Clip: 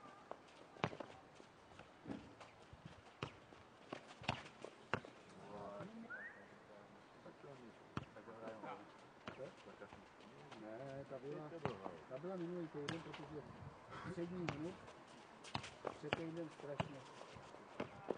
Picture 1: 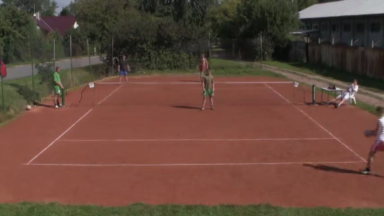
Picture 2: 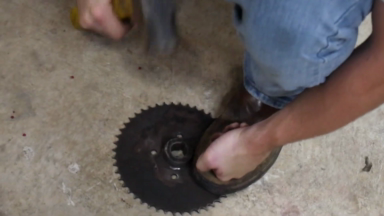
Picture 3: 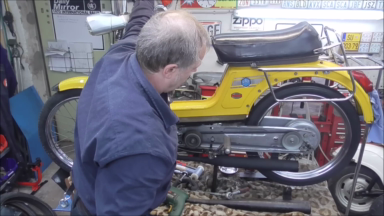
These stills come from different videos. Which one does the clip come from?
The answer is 1